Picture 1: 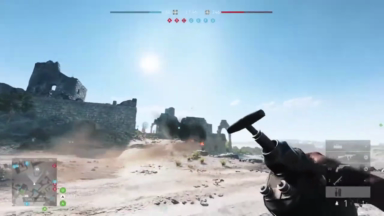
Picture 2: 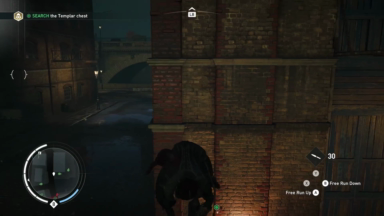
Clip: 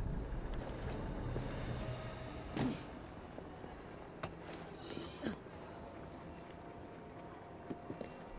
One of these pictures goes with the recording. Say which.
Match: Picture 2